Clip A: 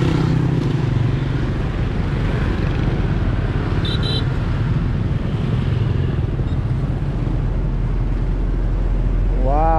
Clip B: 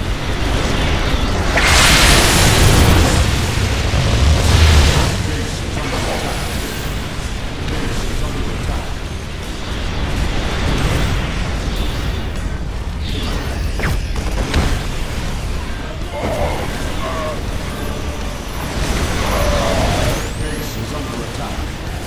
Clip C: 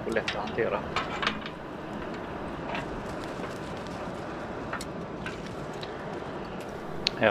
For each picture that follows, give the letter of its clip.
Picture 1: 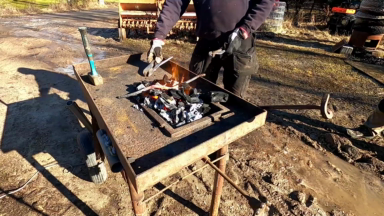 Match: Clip C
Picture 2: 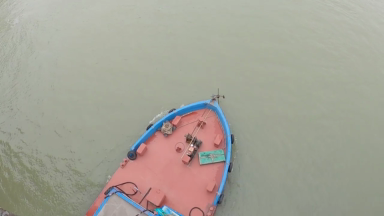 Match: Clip A